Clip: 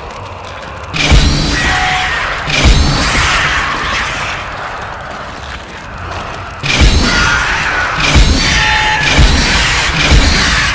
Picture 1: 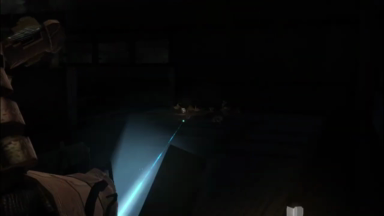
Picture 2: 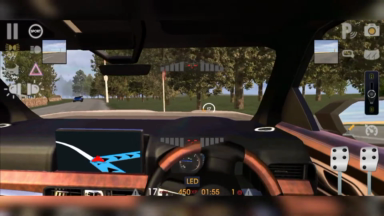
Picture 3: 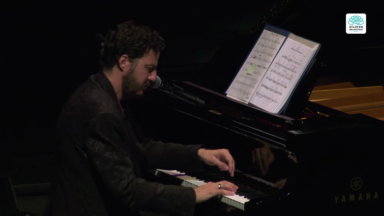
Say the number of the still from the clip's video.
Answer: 1